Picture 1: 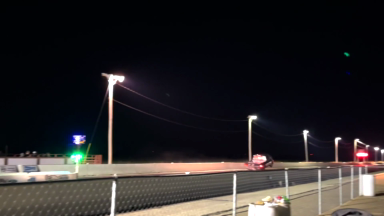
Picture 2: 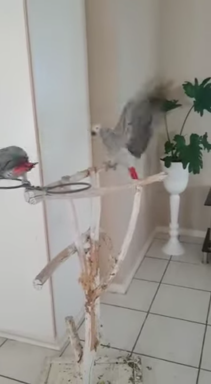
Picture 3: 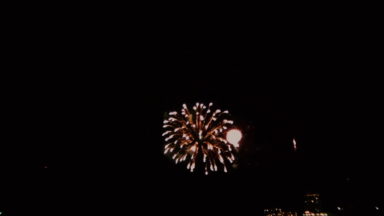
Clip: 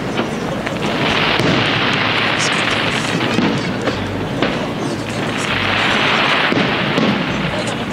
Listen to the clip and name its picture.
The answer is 3